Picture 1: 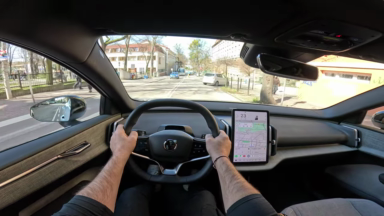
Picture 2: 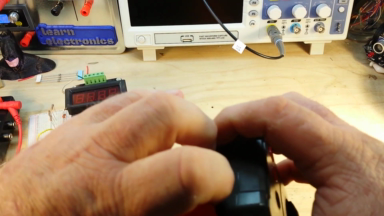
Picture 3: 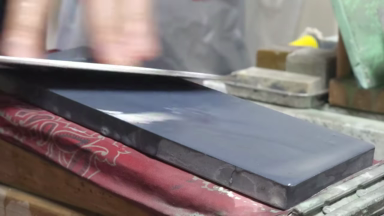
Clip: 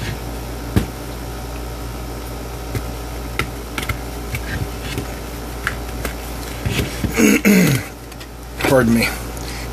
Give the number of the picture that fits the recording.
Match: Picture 2